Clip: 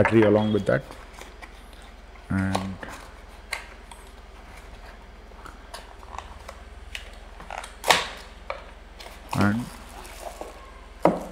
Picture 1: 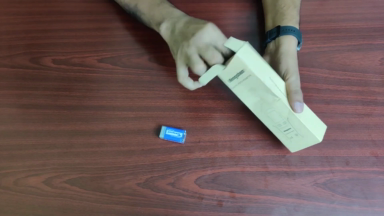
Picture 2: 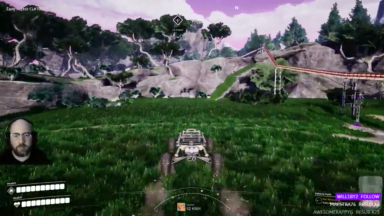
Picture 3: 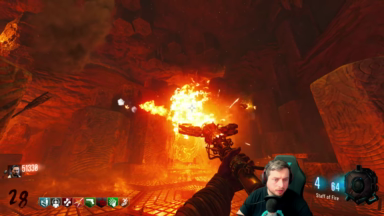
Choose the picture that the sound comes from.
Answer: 1